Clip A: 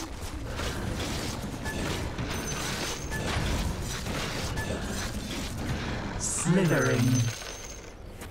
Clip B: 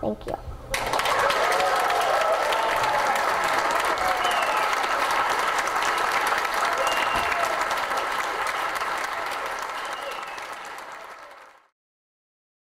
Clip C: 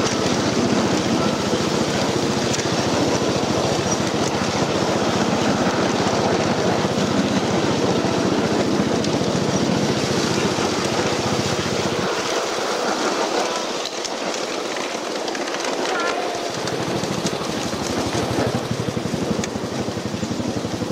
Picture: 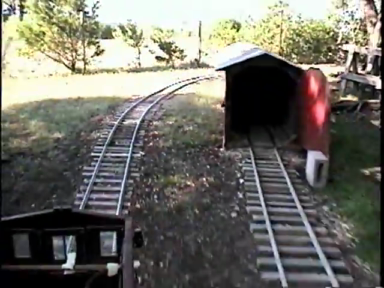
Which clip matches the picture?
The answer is C